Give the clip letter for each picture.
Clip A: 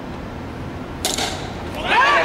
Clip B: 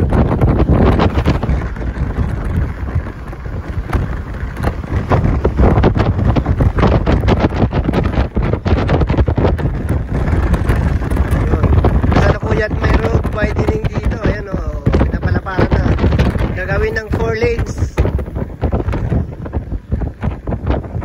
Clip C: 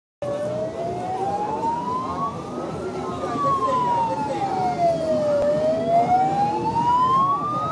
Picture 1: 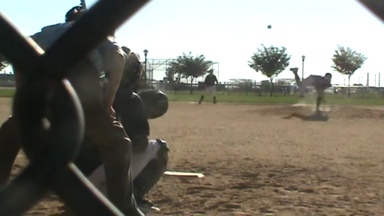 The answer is A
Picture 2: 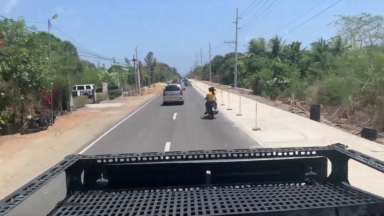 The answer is B